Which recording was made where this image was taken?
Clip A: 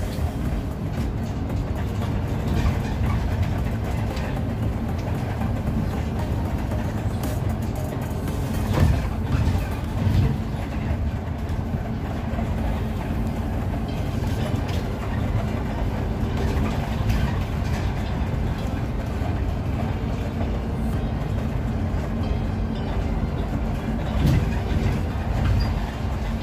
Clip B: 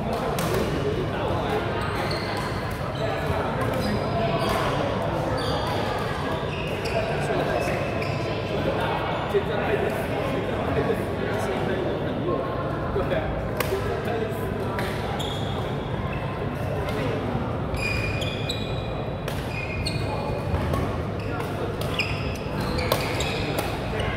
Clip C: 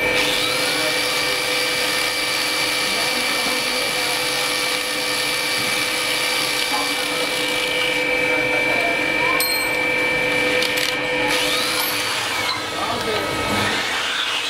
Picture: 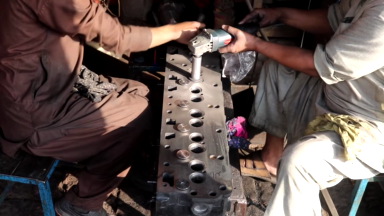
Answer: C